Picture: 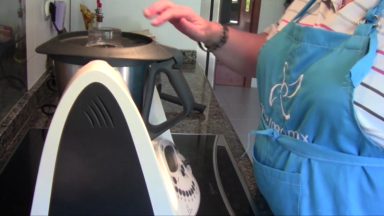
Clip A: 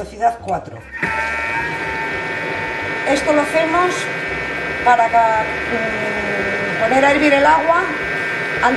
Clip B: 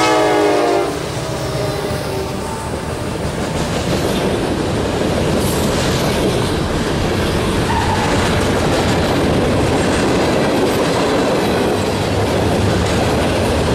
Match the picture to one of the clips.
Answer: A